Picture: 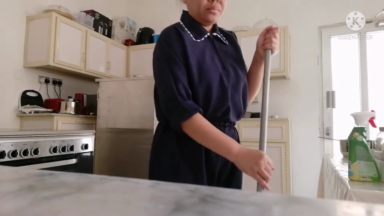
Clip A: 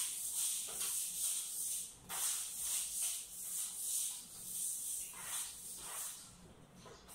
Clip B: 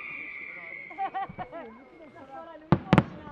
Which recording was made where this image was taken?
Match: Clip A